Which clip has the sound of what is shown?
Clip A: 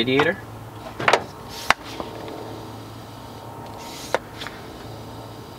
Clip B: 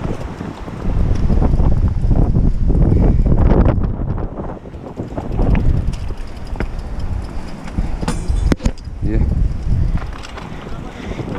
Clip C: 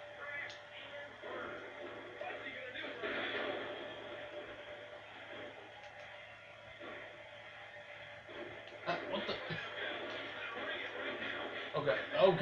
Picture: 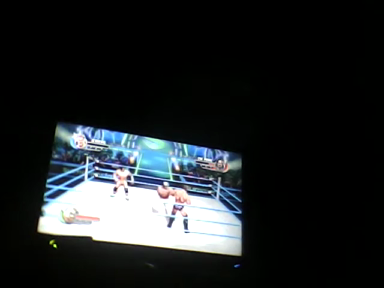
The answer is C